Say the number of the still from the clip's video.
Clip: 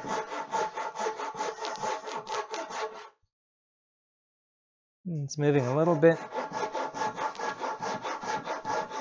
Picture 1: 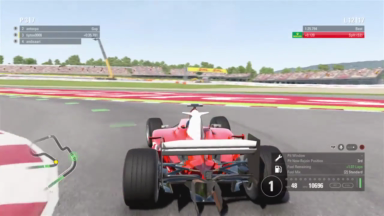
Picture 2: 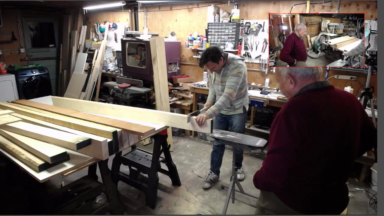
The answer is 2